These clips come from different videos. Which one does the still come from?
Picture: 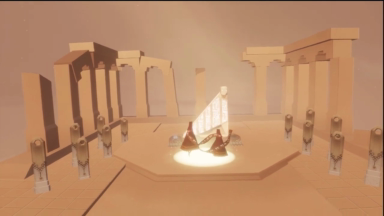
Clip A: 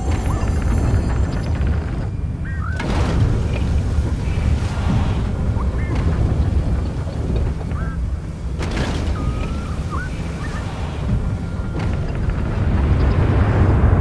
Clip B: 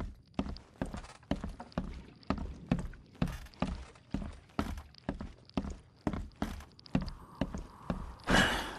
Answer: A